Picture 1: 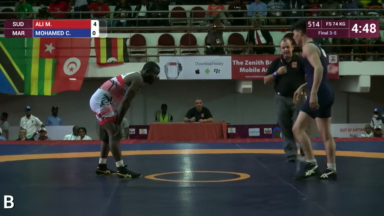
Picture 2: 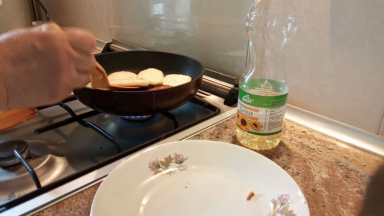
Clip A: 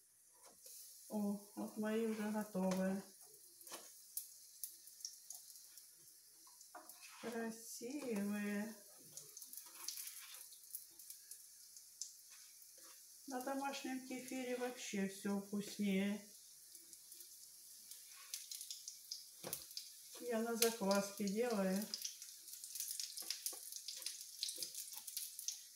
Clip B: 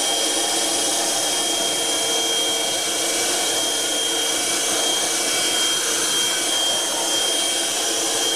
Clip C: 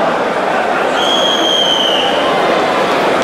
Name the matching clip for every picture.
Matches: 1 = C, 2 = A